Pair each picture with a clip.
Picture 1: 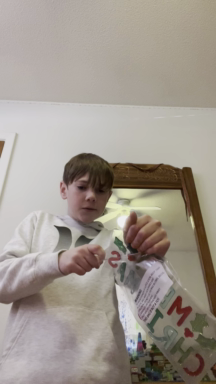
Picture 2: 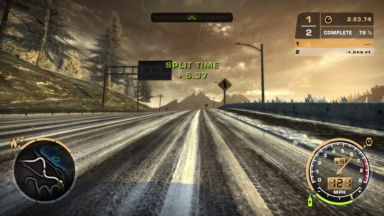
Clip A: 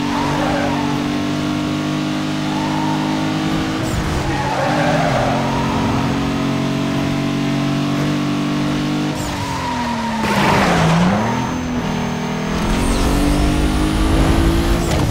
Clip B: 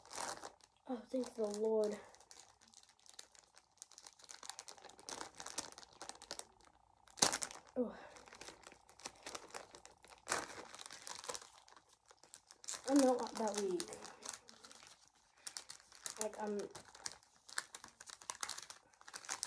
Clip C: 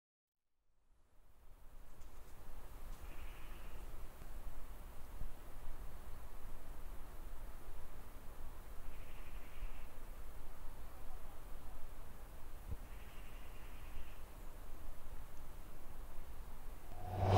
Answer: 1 B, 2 A